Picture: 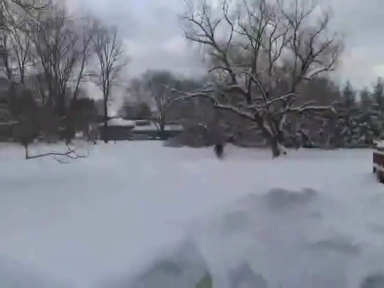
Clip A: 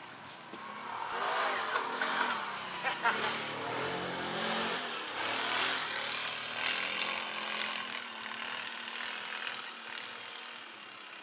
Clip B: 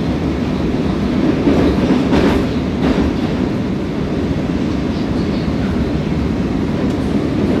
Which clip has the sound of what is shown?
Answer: A